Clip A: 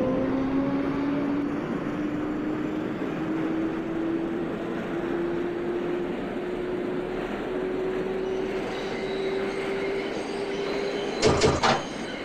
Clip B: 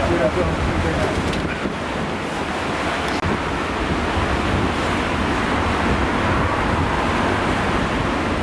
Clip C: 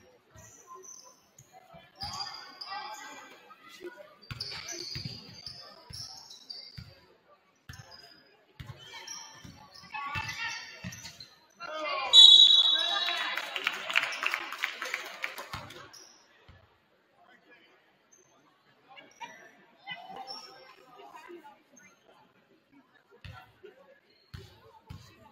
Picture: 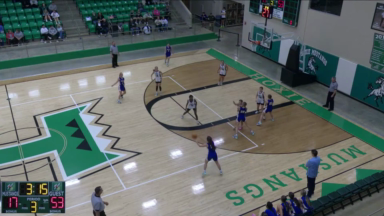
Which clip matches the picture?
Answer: C